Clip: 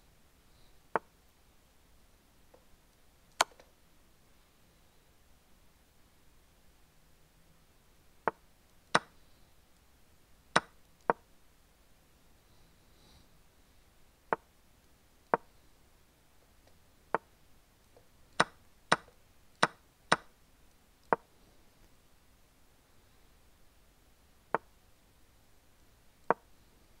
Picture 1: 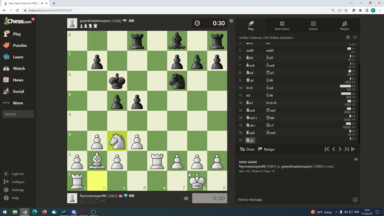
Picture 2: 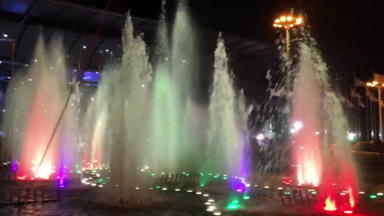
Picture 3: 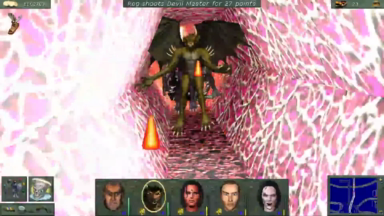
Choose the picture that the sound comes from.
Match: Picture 1